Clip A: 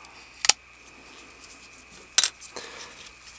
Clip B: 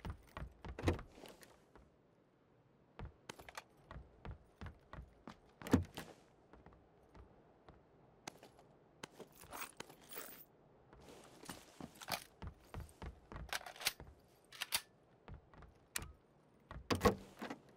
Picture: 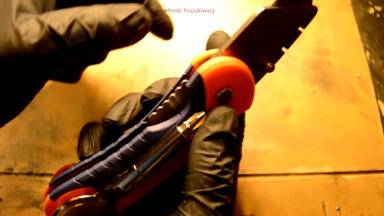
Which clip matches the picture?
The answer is A